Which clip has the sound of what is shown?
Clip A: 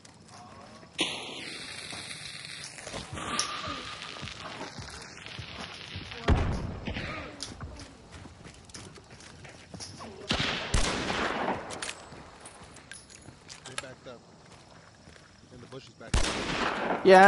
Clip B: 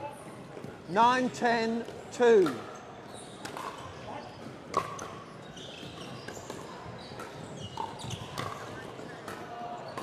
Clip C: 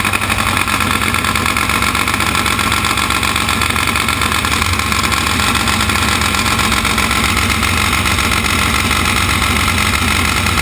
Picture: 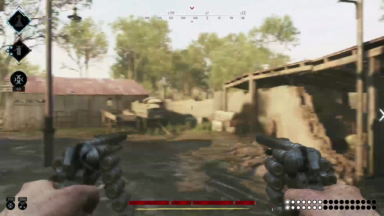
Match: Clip A